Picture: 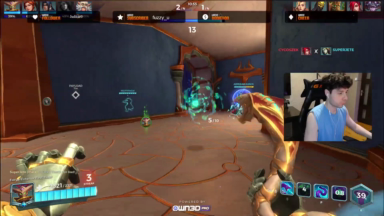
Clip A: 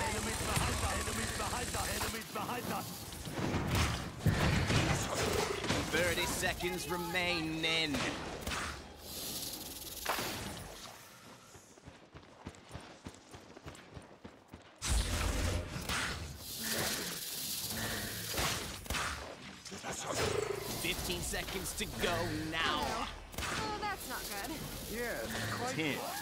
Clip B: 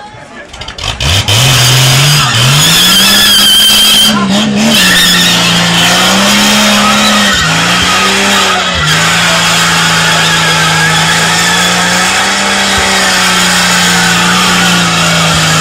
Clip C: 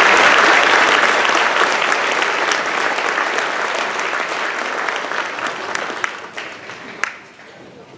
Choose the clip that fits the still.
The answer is A